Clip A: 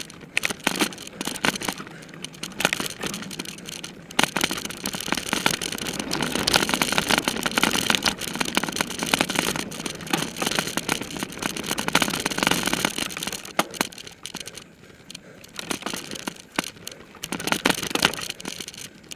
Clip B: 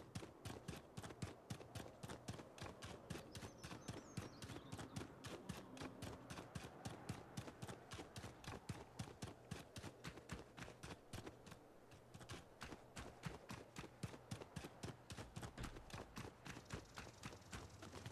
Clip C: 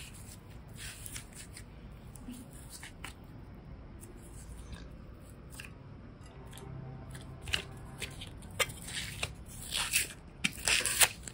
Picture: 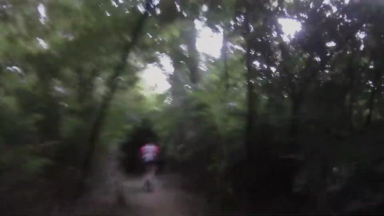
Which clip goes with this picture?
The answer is A